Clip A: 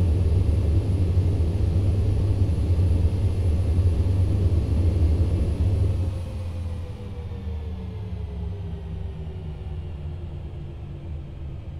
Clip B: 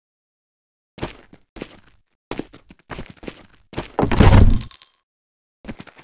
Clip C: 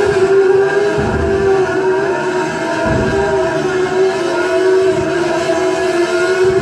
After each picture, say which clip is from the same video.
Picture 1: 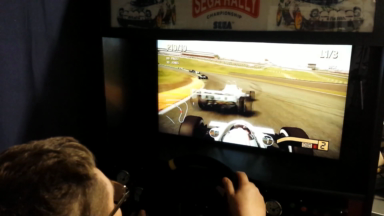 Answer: C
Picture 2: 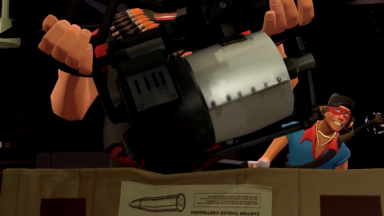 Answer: B